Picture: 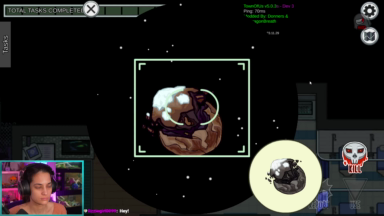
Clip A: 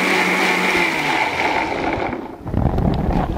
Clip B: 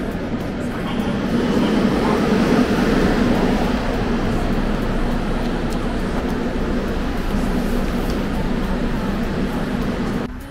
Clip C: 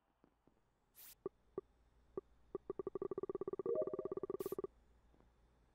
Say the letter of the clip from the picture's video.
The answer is C